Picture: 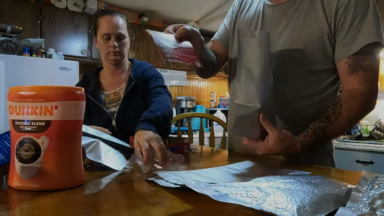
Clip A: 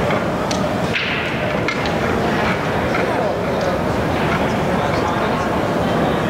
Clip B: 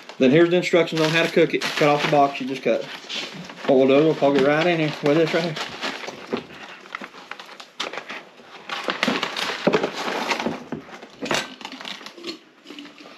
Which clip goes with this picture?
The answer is B